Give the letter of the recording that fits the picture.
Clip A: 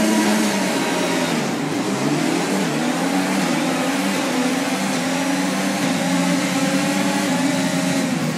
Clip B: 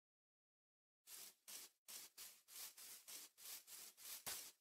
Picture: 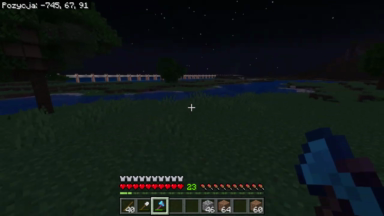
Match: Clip B